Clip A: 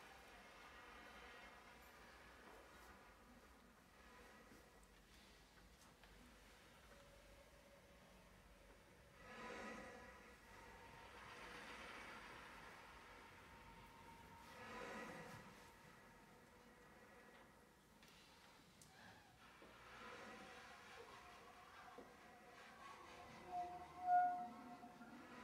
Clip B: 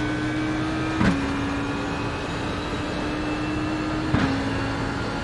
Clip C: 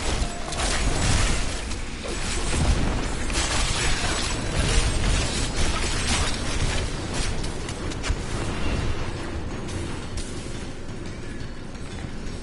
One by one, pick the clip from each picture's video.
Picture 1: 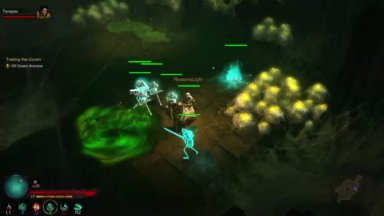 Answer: C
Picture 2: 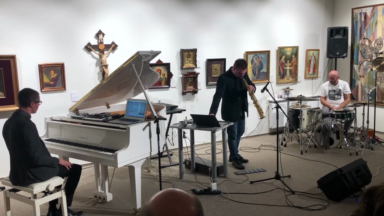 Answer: A